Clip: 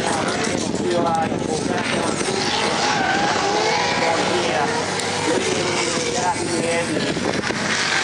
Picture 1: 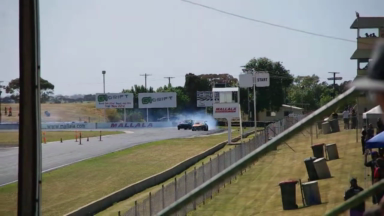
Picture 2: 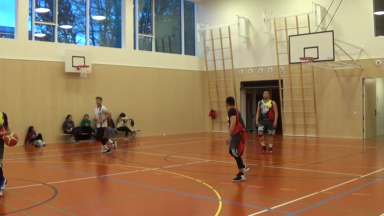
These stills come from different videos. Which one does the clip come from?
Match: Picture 1